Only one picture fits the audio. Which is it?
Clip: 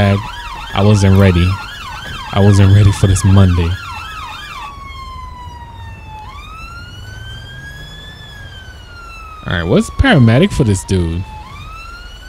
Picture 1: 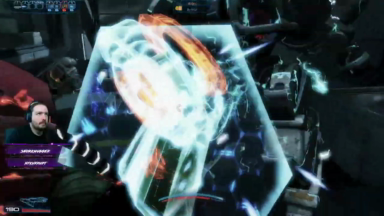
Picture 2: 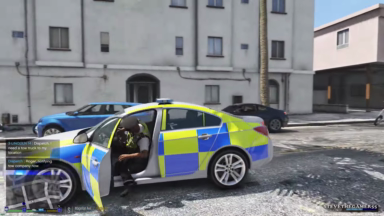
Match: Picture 2